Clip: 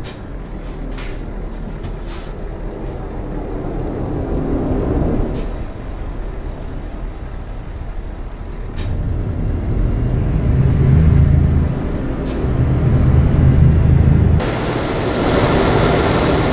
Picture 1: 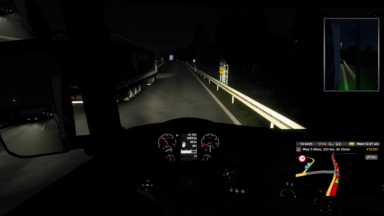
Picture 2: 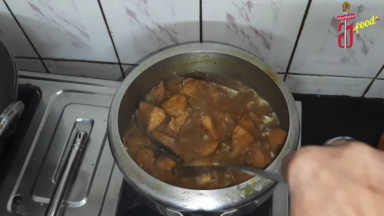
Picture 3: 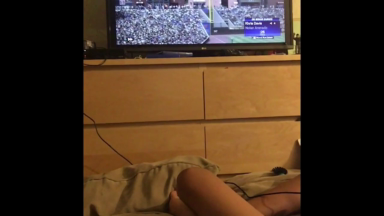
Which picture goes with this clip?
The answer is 1